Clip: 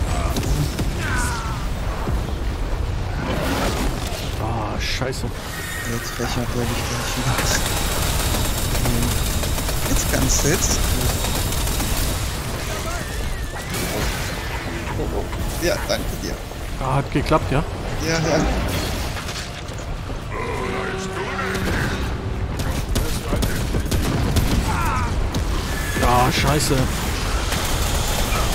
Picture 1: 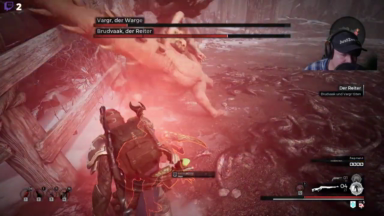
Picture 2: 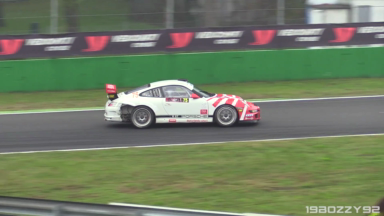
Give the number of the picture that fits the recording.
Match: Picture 1